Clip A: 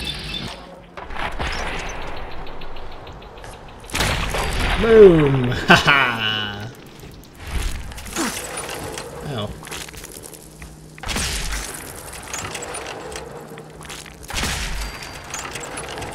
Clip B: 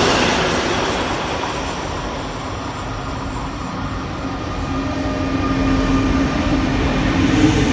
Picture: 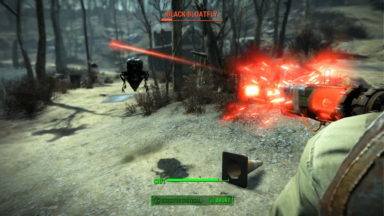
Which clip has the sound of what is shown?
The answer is A